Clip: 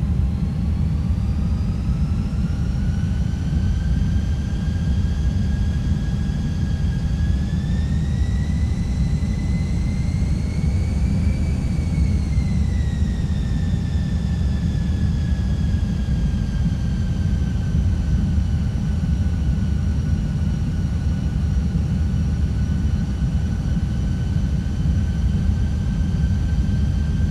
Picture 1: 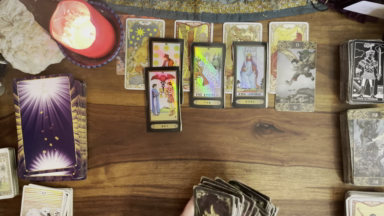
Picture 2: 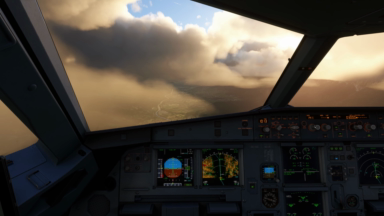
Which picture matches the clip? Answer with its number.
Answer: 2